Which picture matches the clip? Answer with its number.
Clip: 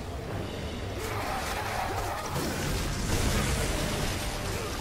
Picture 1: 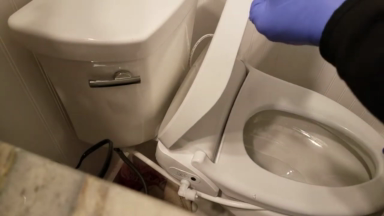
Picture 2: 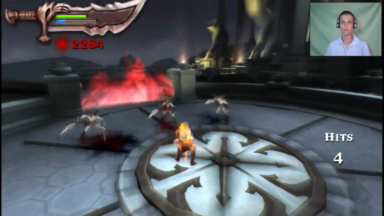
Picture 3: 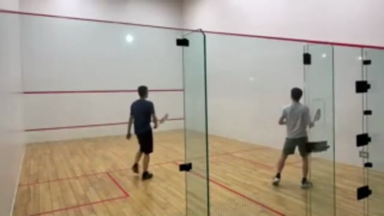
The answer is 2